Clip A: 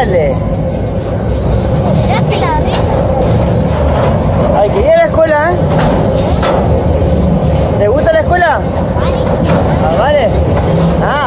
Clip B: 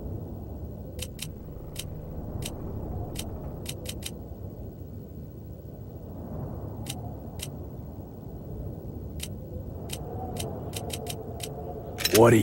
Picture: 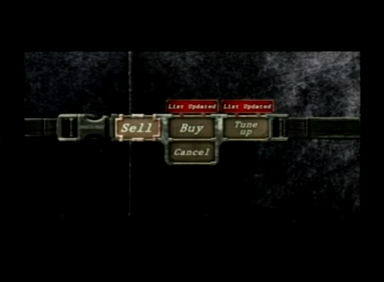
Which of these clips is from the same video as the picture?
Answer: B